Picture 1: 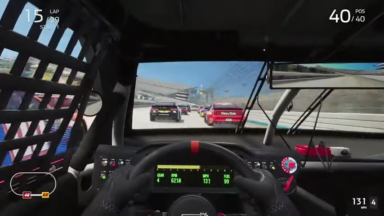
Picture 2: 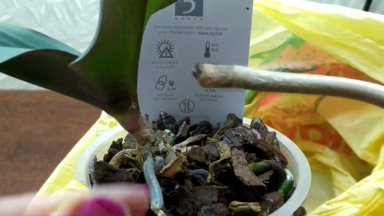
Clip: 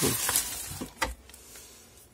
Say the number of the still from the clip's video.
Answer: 2